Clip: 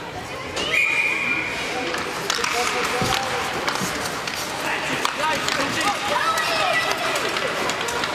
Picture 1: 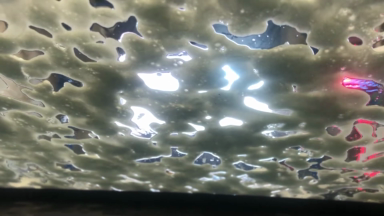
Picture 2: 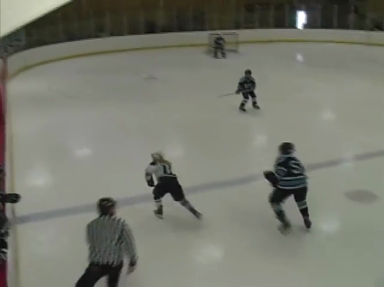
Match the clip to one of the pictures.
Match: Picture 2